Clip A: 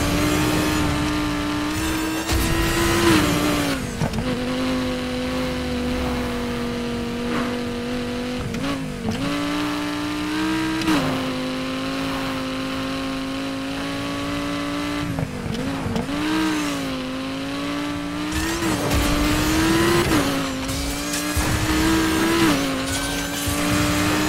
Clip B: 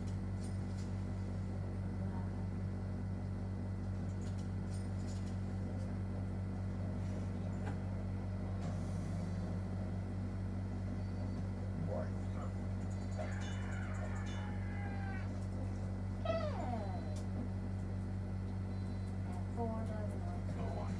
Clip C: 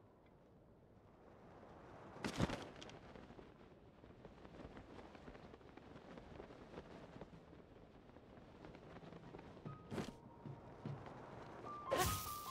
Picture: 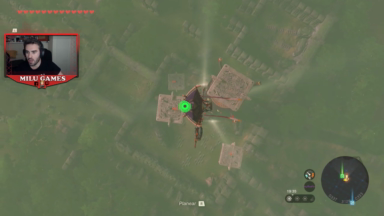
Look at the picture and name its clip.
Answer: C